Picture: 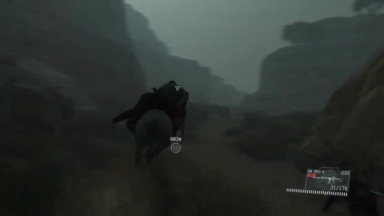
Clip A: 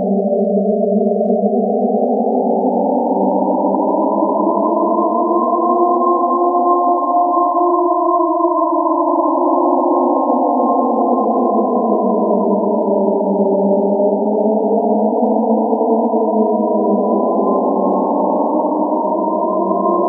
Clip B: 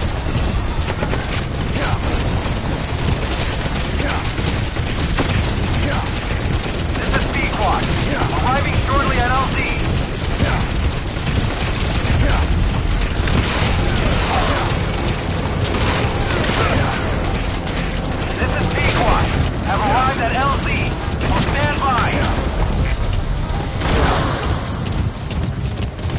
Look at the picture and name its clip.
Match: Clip B